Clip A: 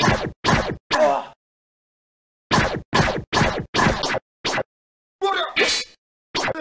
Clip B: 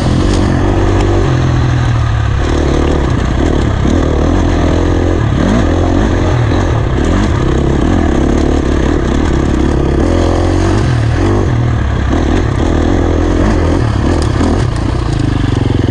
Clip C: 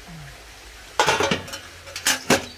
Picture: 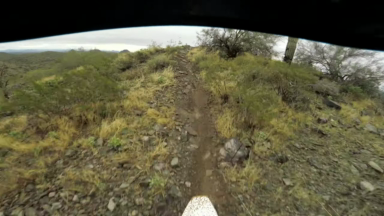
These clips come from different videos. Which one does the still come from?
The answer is B